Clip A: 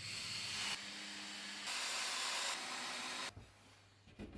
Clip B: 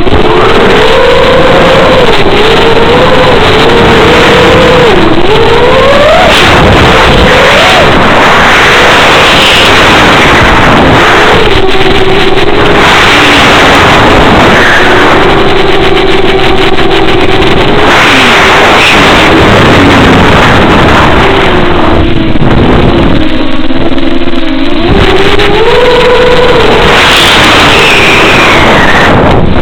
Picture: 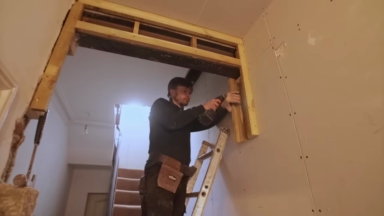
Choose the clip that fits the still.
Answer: A